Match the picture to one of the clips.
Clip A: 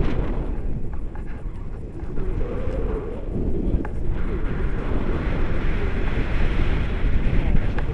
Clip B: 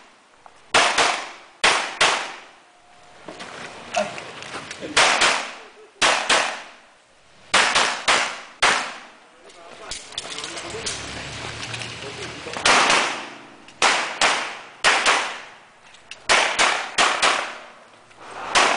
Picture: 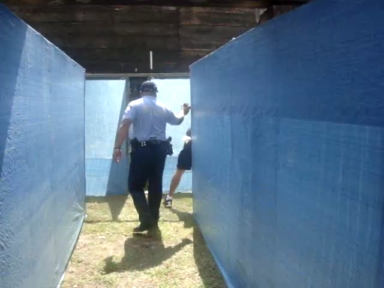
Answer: B